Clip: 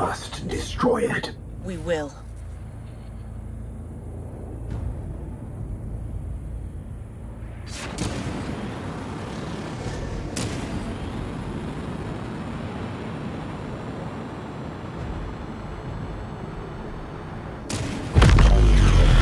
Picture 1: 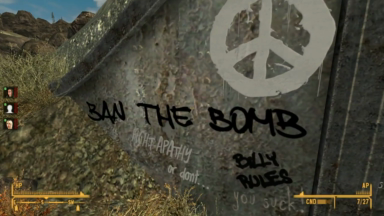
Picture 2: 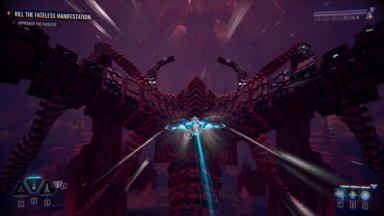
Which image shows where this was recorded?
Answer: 2